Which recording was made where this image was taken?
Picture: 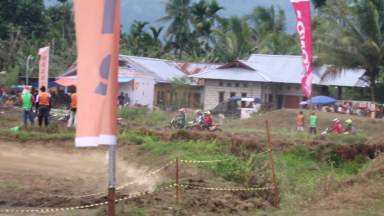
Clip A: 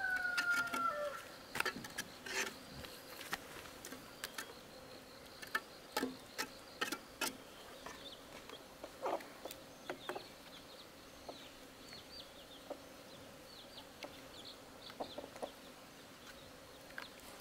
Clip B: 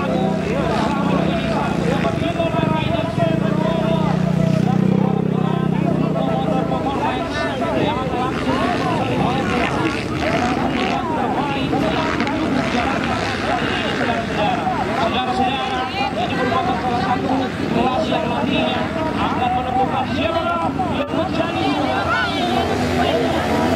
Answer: B